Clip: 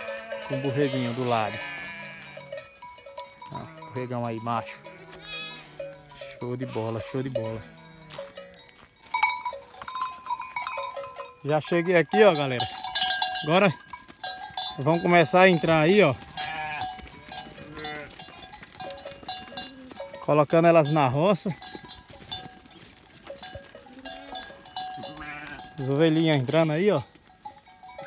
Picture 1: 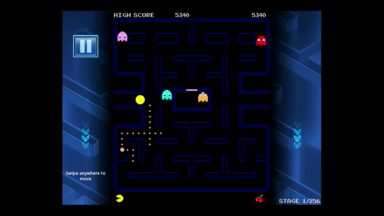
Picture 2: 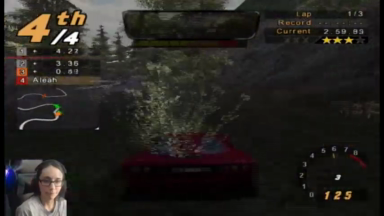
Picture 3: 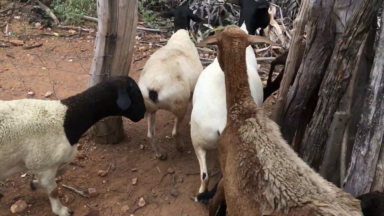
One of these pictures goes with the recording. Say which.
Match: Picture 3